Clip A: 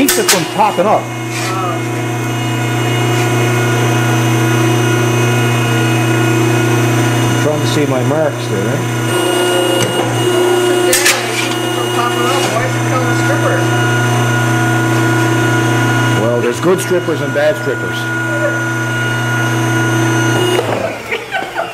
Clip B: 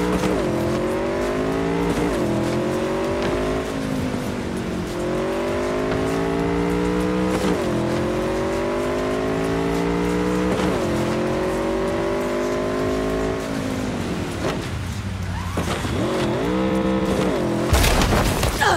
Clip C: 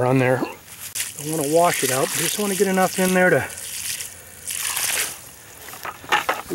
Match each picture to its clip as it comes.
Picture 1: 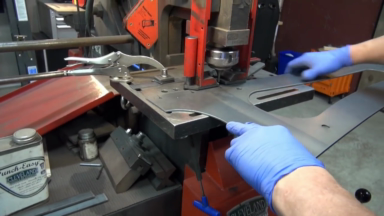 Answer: A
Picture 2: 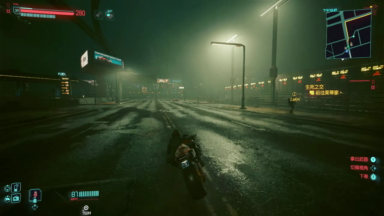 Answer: B